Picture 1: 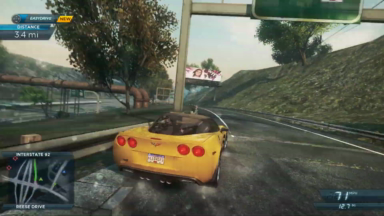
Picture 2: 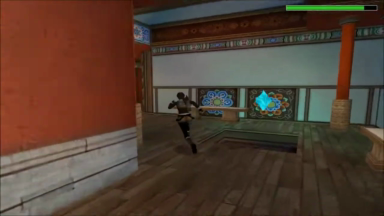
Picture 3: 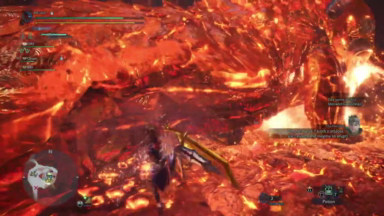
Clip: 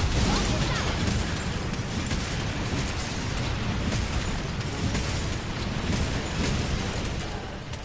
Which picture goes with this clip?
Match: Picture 3